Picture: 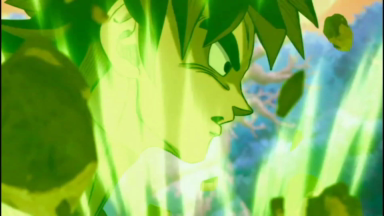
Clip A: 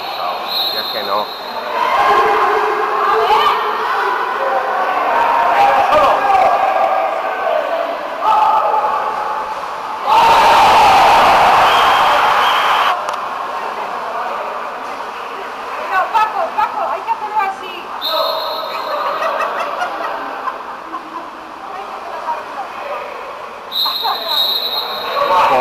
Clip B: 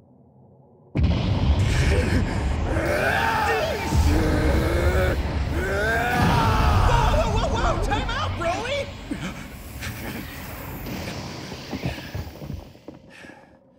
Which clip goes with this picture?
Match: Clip B